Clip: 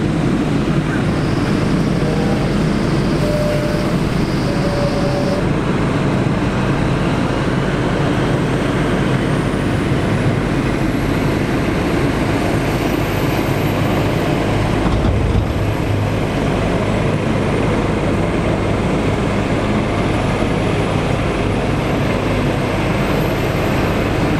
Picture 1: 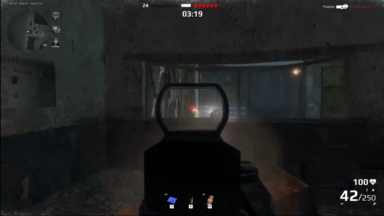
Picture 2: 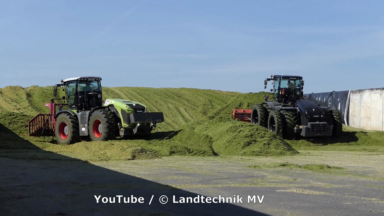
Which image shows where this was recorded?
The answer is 2